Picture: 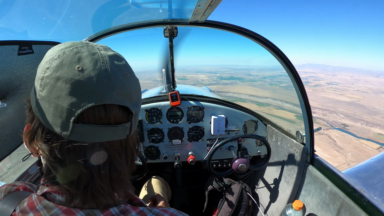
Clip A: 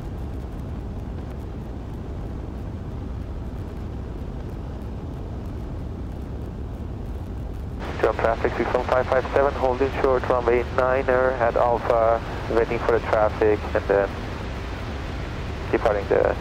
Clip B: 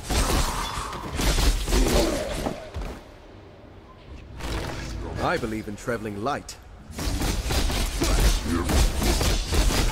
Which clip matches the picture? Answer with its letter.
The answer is A